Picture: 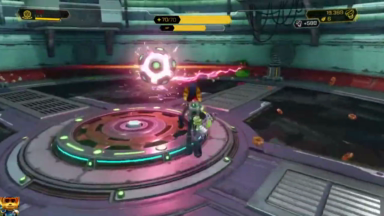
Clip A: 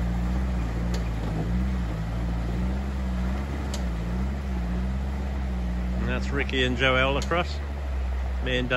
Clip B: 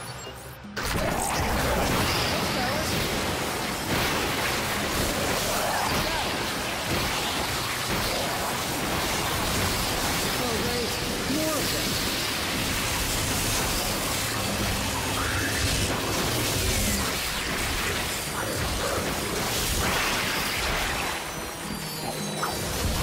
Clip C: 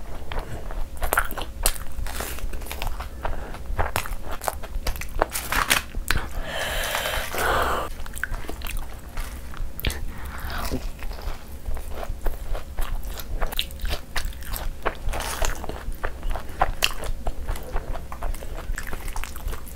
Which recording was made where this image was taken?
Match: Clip B